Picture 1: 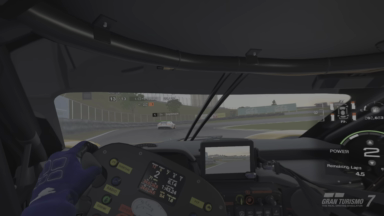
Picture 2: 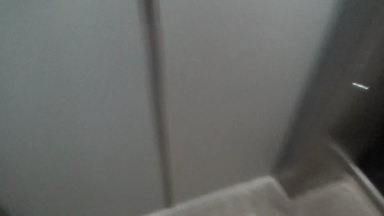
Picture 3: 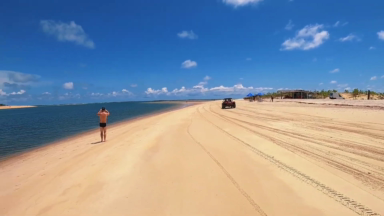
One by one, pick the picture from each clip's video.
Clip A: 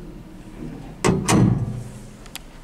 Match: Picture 2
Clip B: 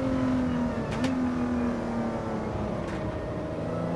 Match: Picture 1